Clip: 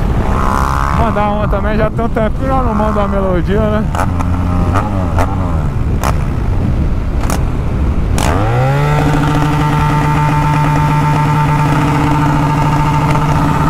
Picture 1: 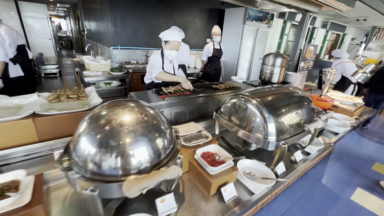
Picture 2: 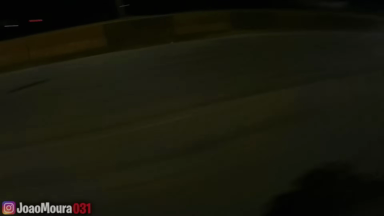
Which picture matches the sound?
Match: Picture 2